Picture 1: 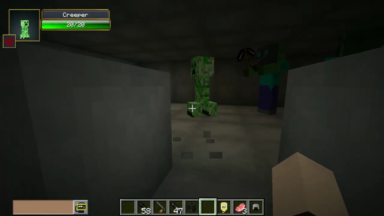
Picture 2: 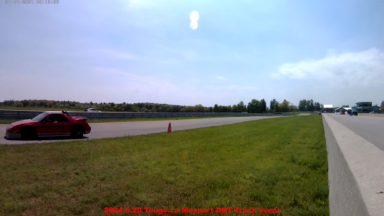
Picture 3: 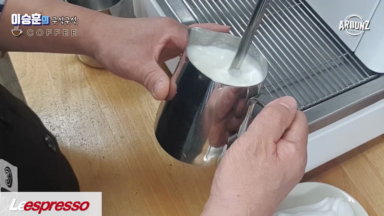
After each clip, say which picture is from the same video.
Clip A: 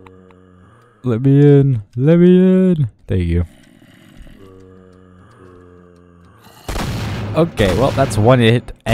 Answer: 1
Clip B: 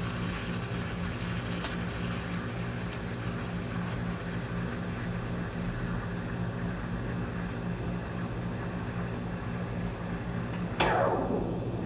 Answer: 3